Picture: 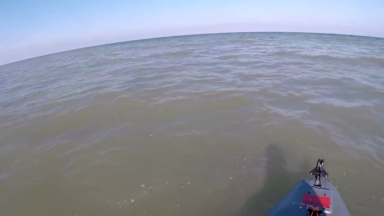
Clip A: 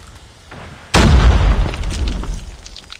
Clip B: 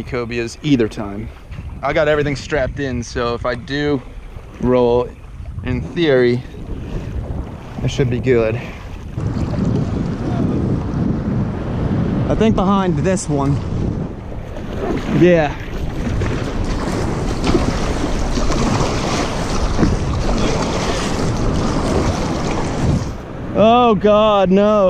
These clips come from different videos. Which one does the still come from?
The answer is B